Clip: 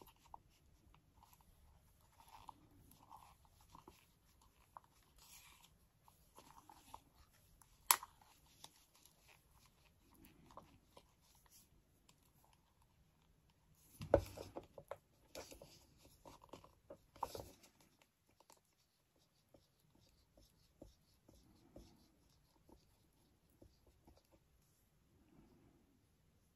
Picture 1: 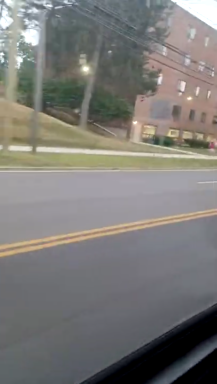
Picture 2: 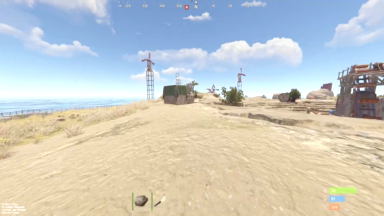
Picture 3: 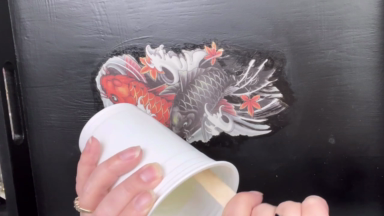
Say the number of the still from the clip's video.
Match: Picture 3